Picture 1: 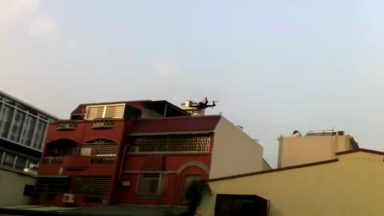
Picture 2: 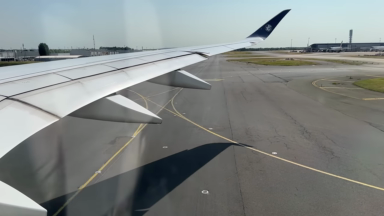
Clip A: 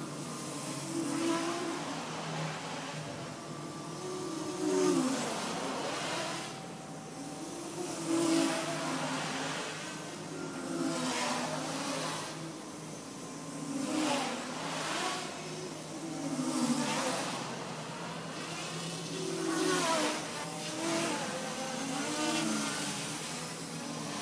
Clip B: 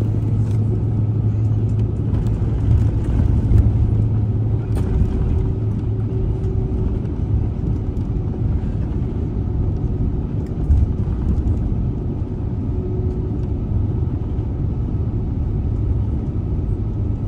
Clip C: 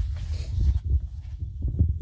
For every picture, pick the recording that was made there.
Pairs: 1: A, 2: B